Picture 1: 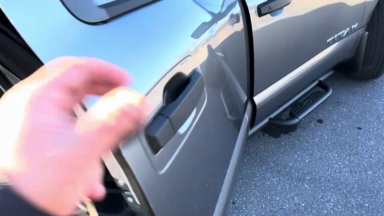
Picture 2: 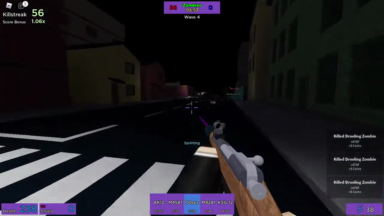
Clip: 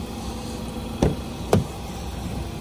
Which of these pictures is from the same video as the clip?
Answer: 1